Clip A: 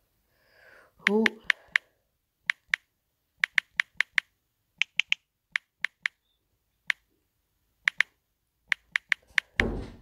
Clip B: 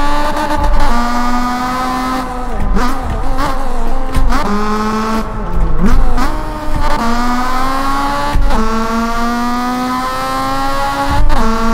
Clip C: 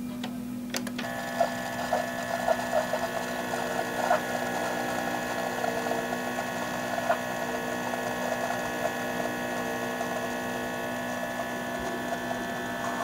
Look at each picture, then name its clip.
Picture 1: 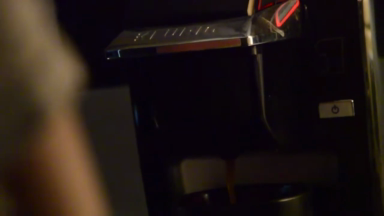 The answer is C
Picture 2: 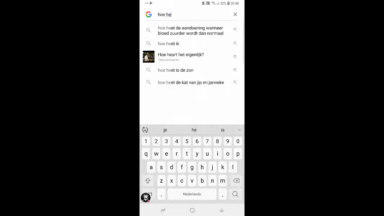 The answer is A